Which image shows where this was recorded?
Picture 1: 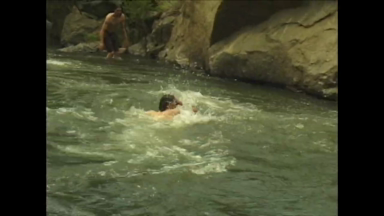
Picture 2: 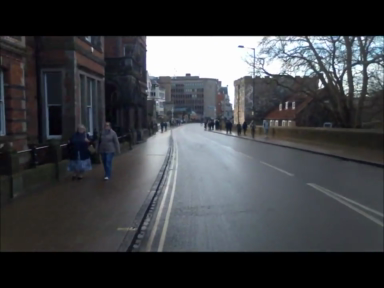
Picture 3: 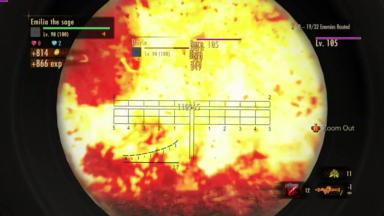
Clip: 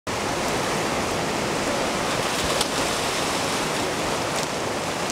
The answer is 1